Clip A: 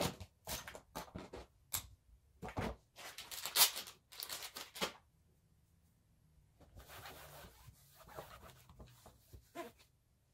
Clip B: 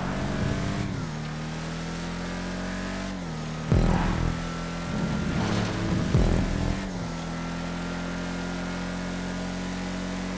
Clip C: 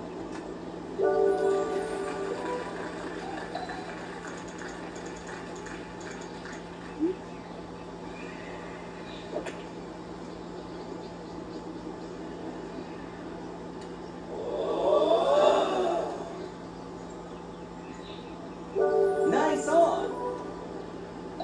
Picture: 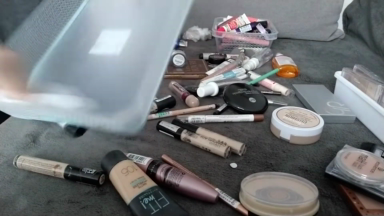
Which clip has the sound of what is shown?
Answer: A